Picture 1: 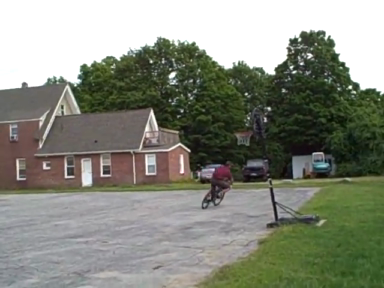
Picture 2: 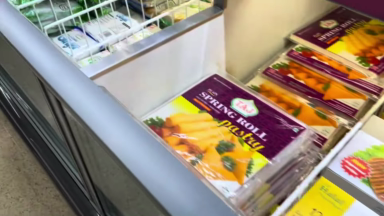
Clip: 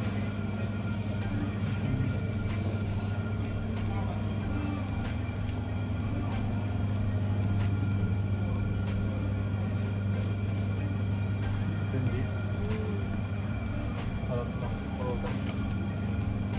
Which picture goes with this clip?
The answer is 2